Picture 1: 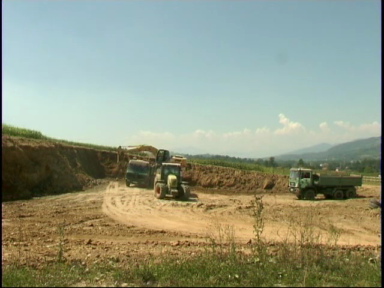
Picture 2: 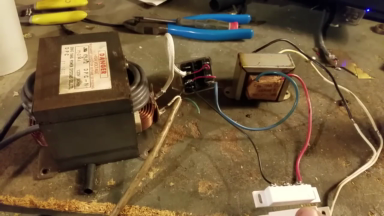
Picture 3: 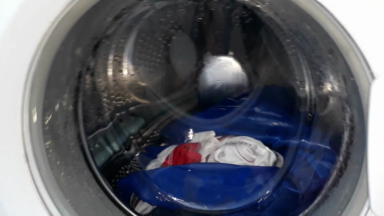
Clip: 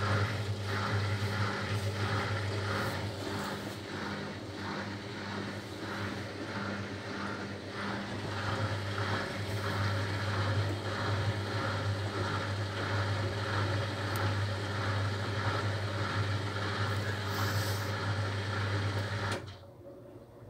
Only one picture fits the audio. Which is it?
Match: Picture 3